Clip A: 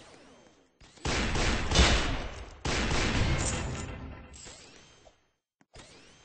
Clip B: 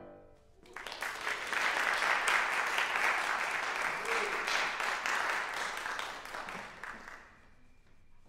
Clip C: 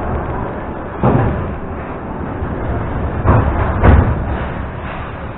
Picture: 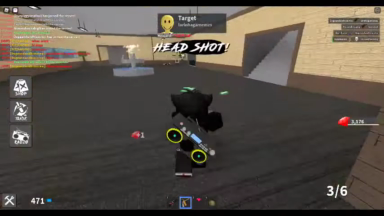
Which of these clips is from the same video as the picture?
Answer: A